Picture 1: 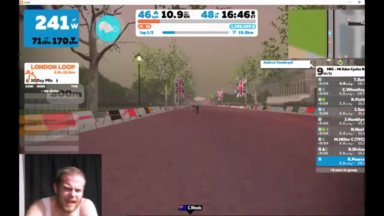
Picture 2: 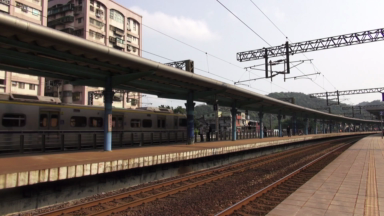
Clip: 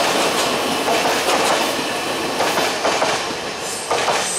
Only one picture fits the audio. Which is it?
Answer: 2